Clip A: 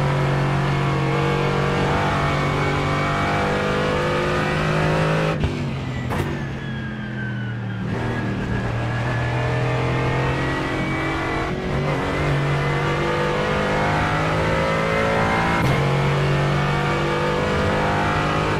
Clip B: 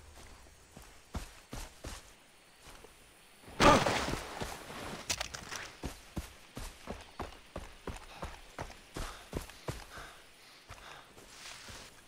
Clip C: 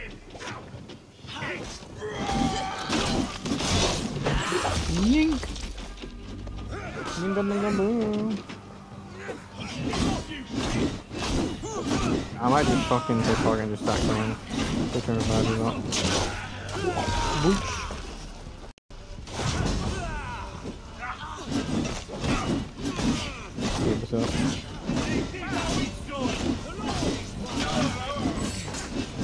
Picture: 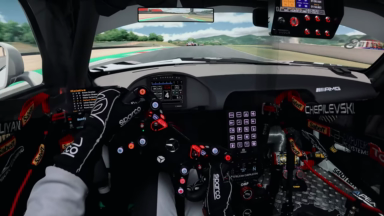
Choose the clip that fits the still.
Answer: A